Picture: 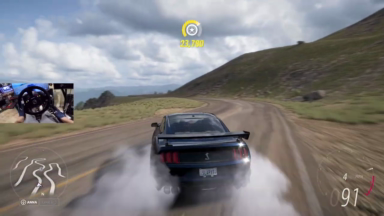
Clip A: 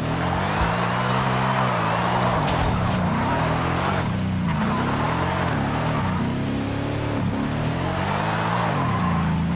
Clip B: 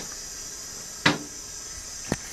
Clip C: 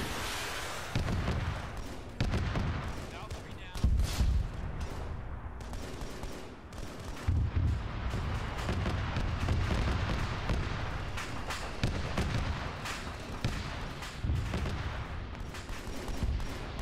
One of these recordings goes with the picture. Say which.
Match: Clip A